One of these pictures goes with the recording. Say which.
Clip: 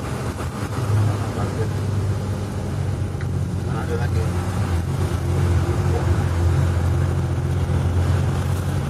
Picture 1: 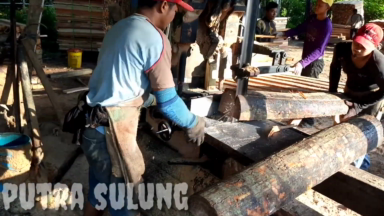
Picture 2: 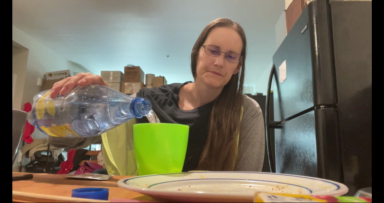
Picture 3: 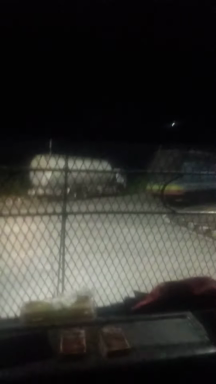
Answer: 3